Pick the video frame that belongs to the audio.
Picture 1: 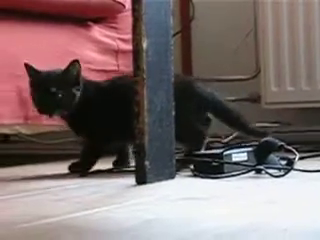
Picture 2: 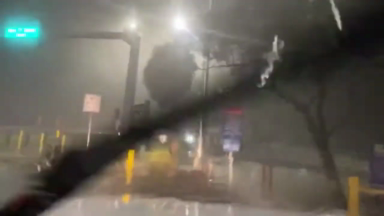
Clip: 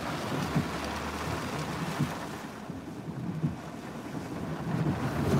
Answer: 2